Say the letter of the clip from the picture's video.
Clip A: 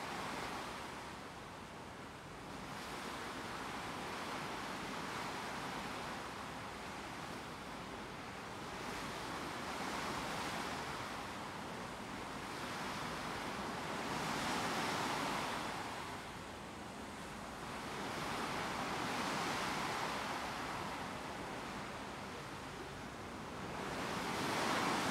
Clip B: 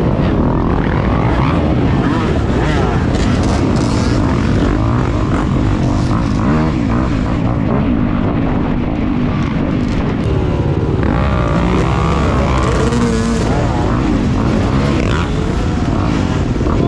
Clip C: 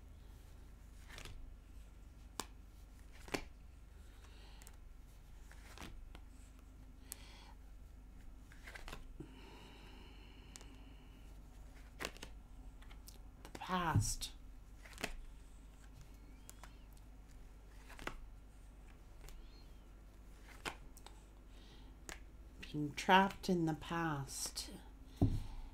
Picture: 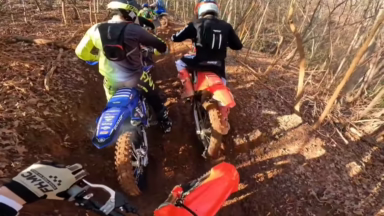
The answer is B